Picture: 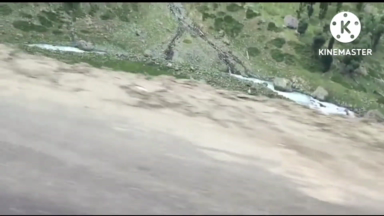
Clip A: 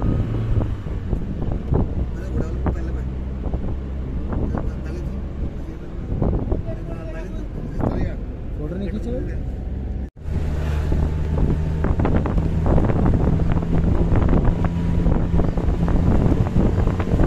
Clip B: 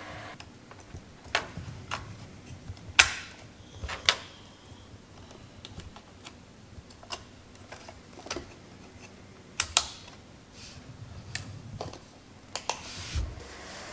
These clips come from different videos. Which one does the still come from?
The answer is A